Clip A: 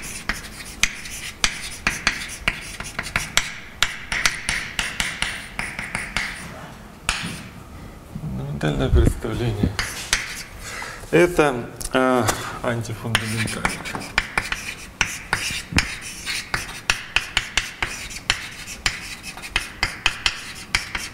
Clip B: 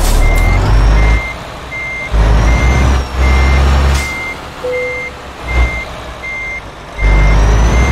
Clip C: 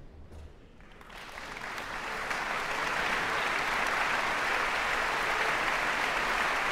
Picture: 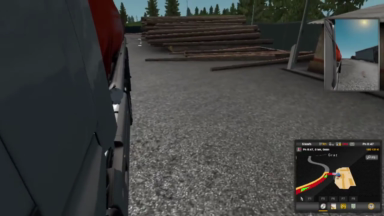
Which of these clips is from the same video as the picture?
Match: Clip B